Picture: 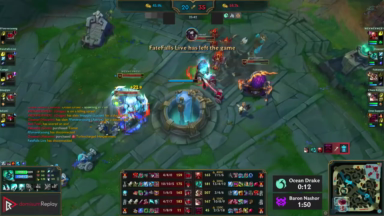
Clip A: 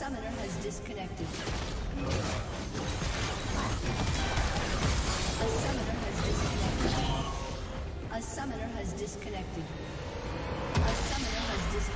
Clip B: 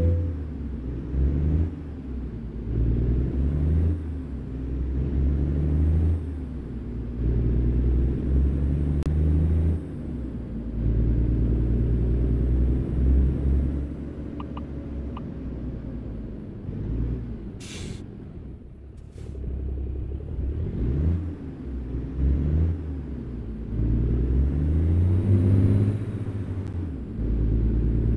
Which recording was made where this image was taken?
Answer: A